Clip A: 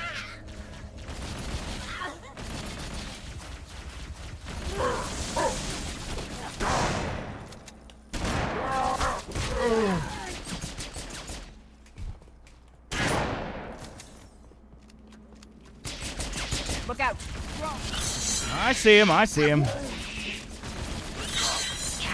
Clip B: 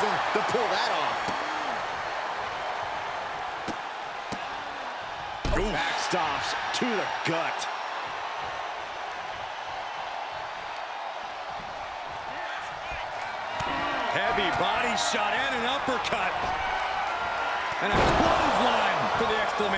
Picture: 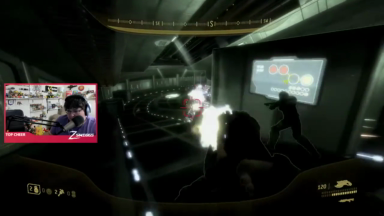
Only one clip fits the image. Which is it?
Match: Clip A